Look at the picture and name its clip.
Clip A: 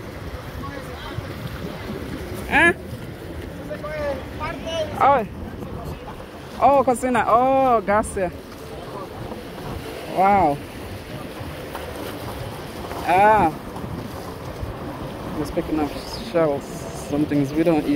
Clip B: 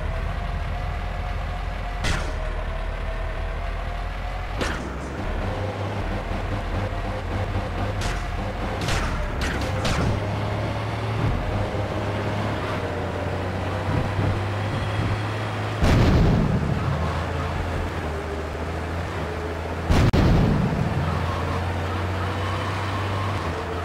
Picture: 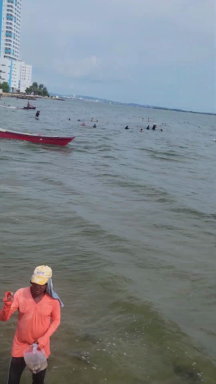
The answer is A